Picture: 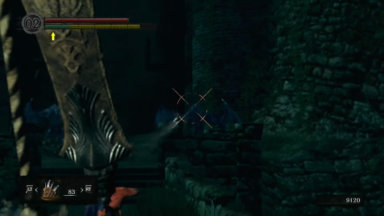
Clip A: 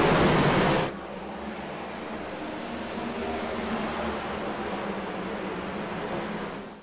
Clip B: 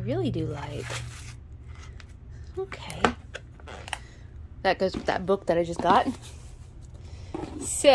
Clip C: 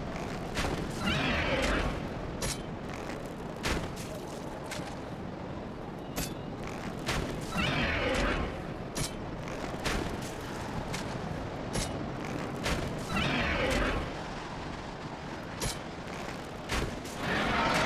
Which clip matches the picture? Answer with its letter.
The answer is C